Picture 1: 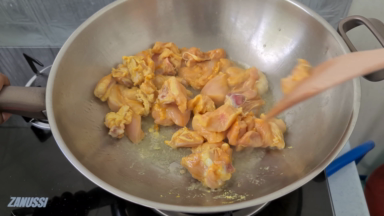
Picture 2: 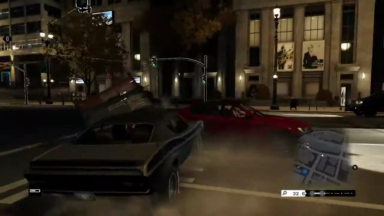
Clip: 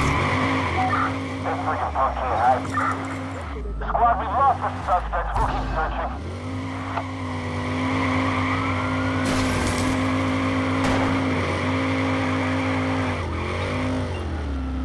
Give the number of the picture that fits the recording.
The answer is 2